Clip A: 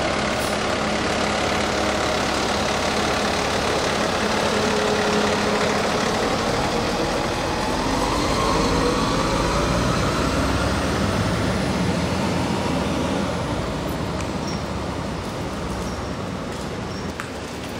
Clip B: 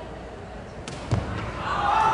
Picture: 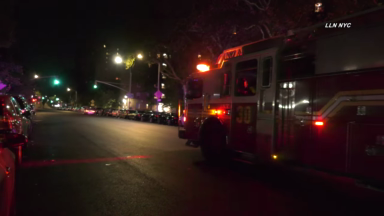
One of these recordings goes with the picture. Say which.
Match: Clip A